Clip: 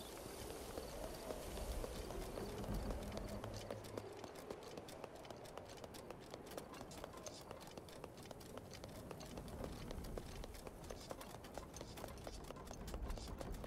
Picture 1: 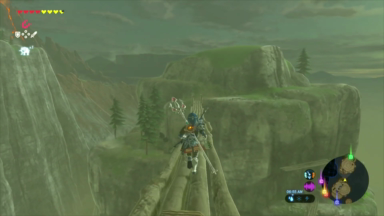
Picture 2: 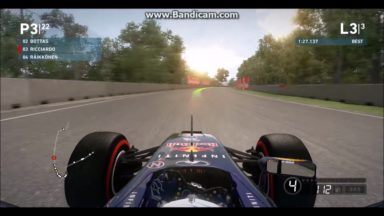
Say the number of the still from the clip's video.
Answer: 1